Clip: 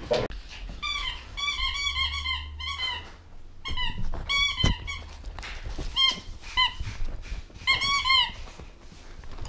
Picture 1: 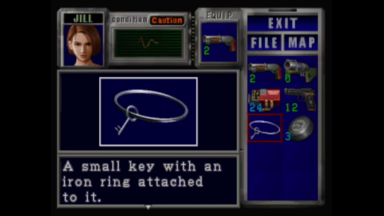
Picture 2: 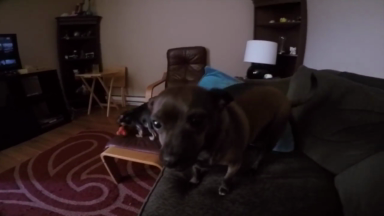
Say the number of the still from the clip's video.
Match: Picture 2